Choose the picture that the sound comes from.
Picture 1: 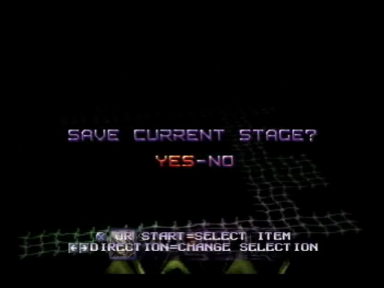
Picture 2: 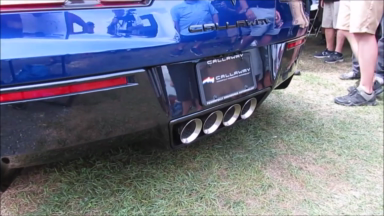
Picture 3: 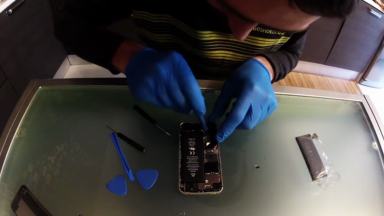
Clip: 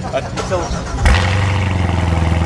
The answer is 2